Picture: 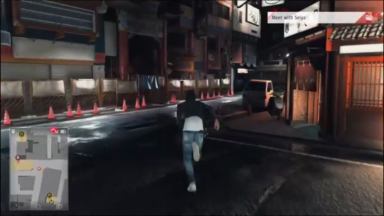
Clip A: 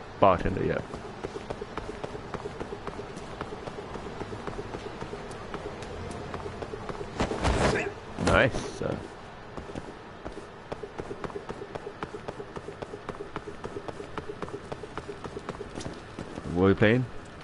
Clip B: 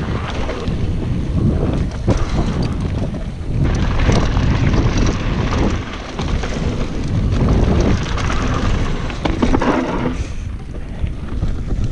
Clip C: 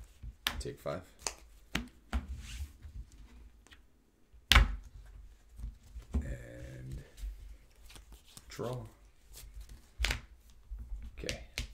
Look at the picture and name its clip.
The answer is A